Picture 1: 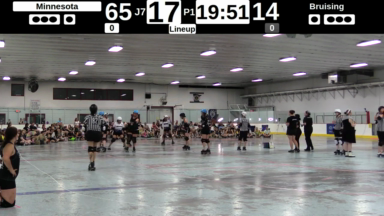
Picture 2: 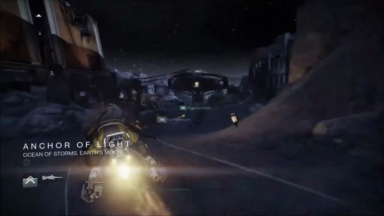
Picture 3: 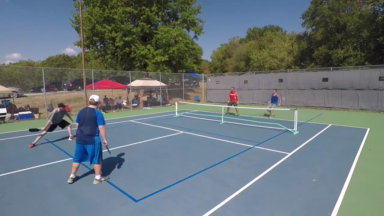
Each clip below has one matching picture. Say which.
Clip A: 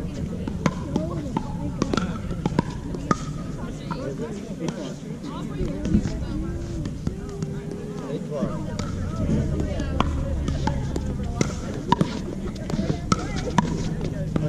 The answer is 3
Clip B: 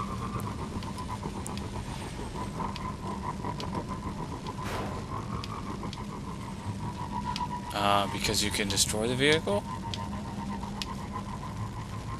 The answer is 2